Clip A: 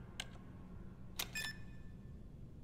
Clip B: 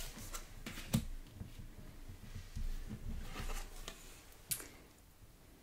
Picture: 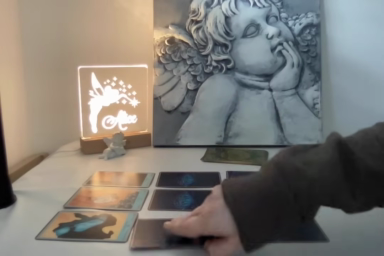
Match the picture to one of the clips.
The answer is B